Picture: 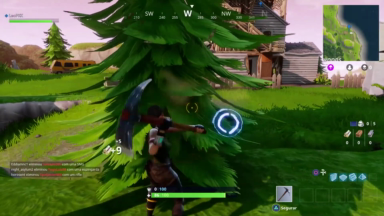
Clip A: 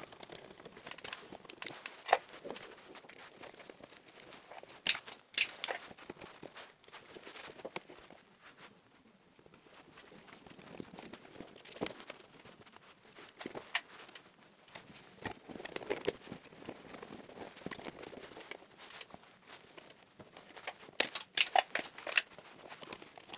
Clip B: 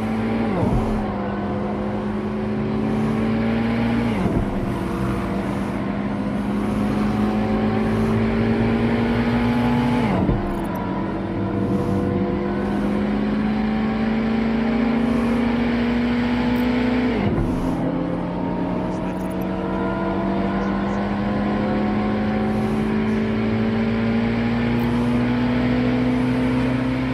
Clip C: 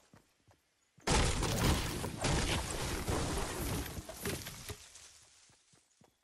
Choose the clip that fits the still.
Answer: C